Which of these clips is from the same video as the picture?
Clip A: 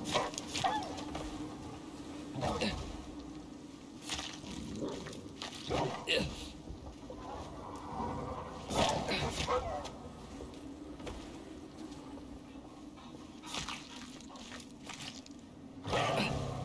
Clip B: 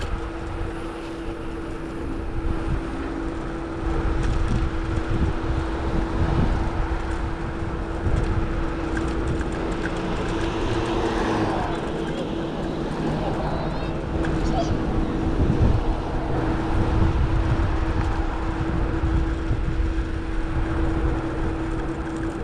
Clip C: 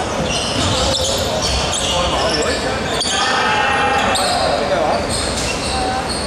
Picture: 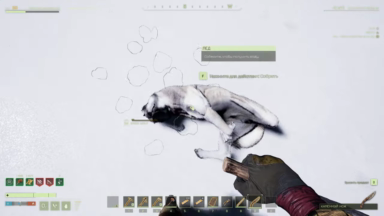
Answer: A